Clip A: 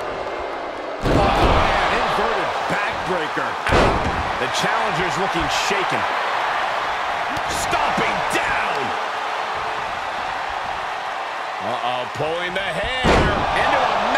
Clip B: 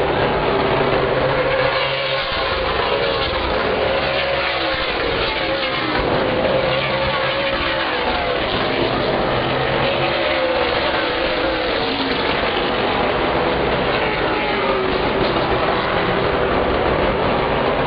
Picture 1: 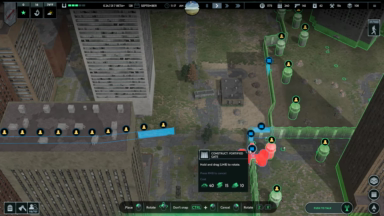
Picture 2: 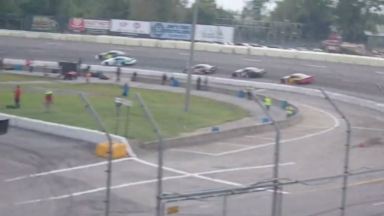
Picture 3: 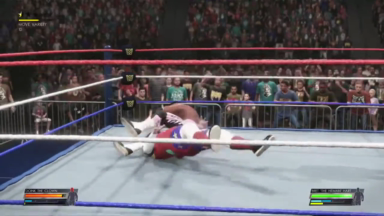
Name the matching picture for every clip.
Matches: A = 3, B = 2